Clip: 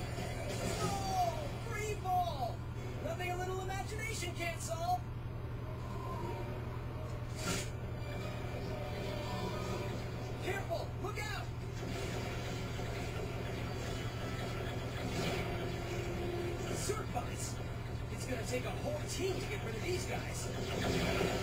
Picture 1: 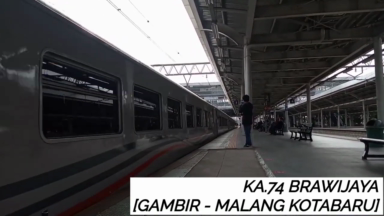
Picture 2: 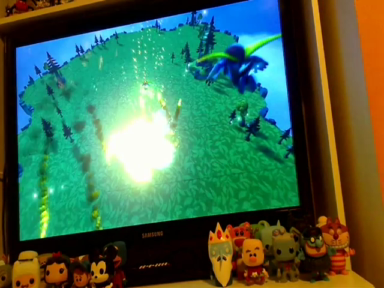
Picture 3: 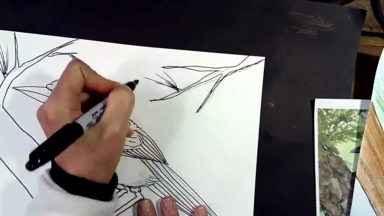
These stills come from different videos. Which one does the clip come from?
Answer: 2